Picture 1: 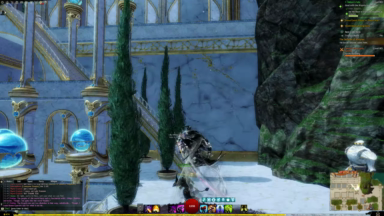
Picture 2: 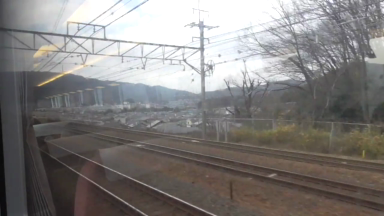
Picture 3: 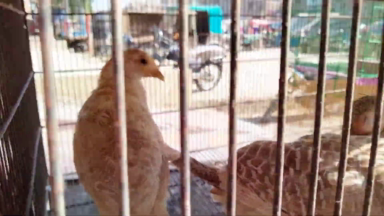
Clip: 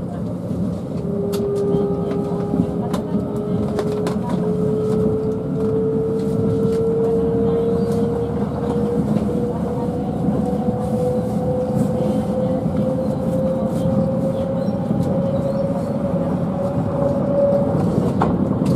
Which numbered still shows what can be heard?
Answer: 2